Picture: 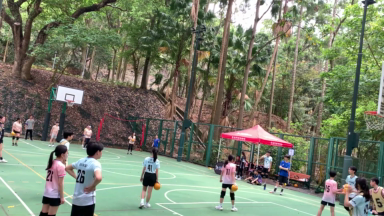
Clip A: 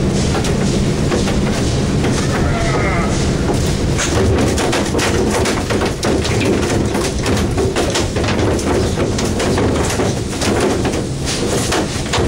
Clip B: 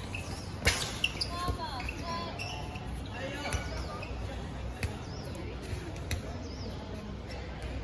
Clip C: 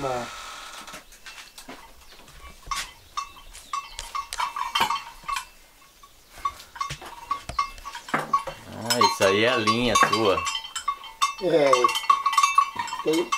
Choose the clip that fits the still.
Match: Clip B